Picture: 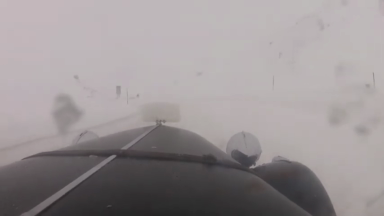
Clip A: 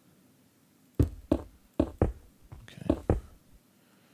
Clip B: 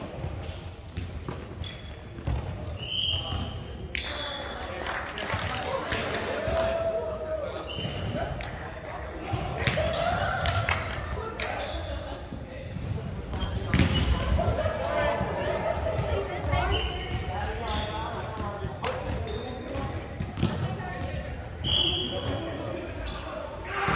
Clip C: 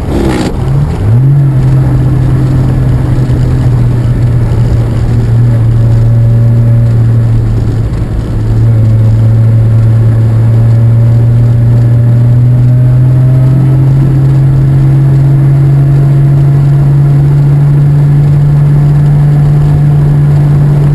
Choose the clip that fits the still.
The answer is C